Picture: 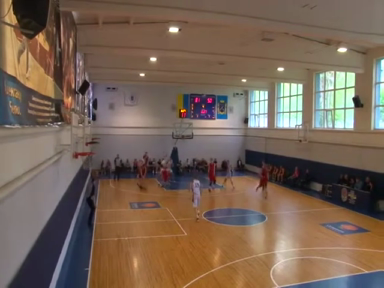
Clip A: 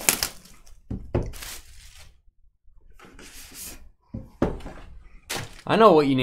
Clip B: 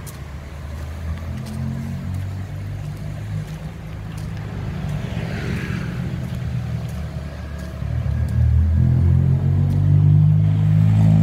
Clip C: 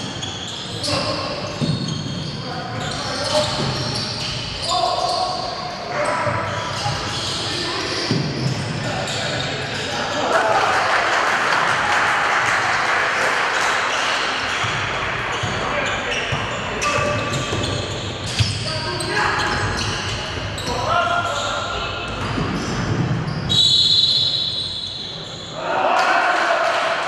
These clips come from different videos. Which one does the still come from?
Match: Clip C